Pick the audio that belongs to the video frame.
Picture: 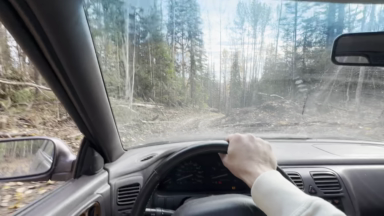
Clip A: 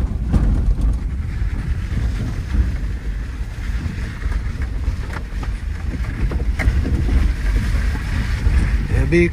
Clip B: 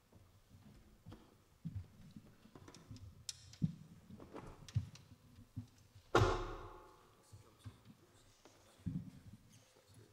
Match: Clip A